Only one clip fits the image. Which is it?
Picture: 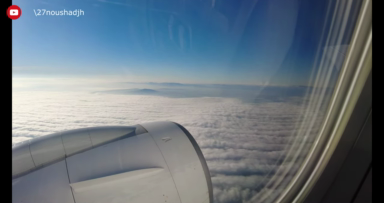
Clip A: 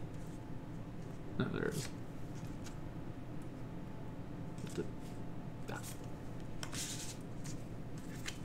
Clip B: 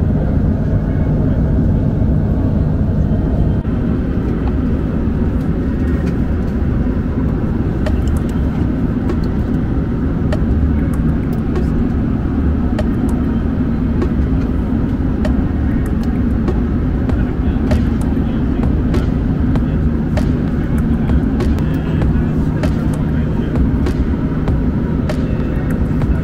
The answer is B